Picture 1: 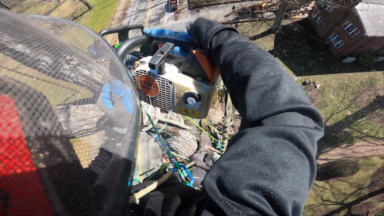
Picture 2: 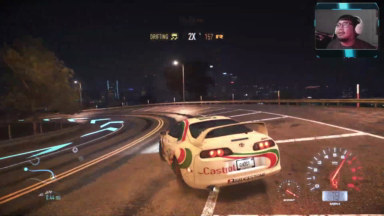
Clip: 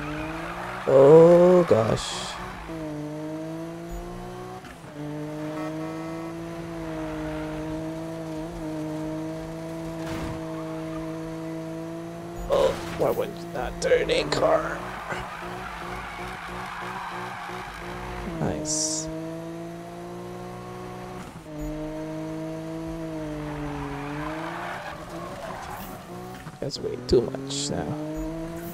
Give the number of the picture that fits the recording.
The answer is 2